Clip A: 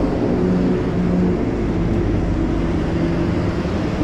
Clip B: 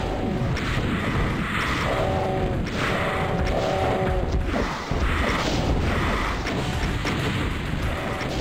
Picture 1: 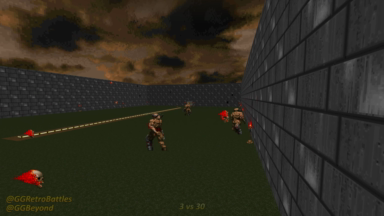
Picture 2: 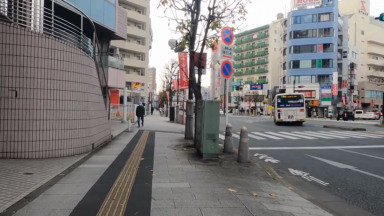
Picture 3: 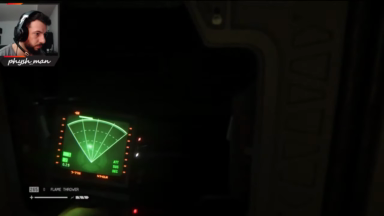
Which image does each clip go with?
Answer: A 2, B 1